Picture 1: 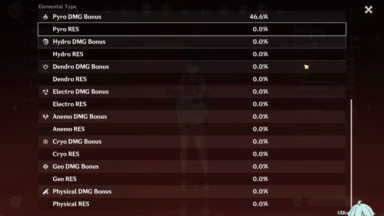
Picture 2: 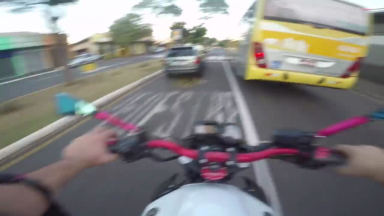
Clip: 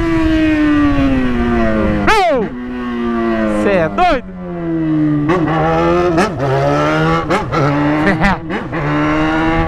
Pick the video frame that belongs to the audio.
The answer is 2